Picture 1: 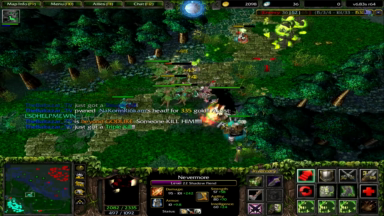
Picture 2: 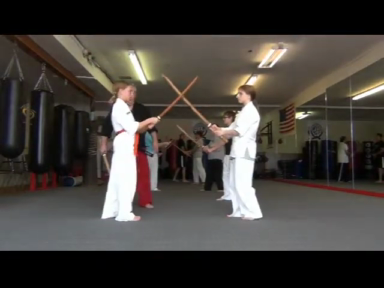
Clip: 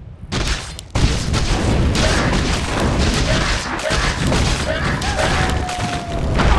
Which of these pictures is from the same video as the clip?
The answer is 1